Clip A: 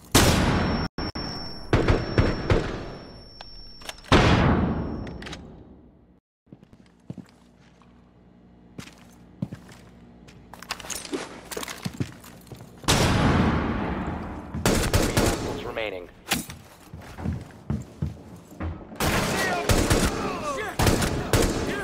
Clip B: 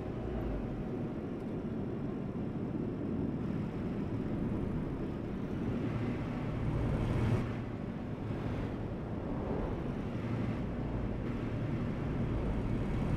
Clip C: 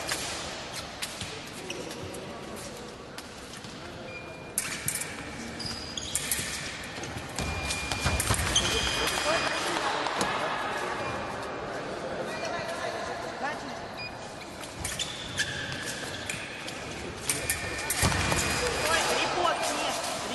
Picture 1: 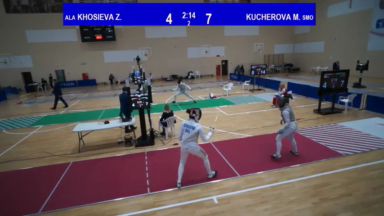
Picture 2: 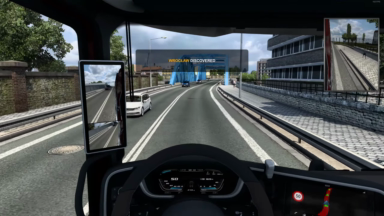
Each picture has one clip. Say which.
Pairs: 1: C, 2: B